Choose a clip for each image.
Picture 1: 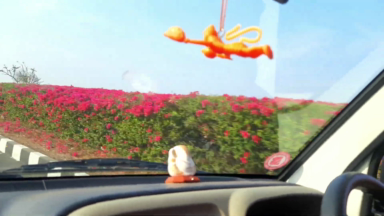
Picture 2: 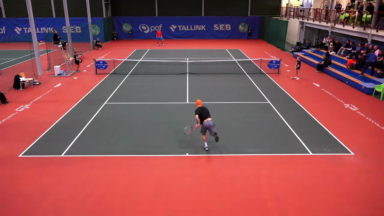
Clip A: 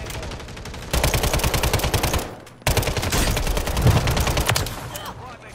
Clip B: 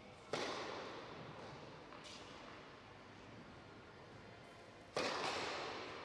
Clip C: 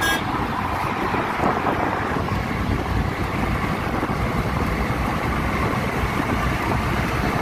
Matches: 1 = C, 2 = B